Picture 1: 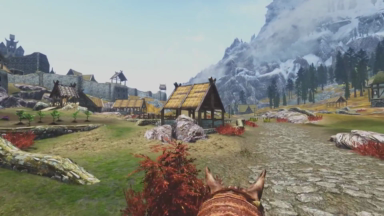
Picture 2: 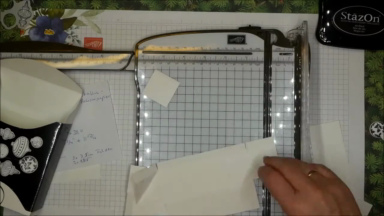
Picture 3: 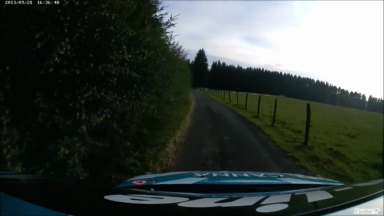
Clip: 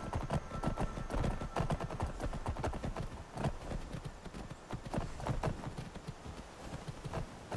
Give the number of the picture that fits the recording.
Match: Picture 1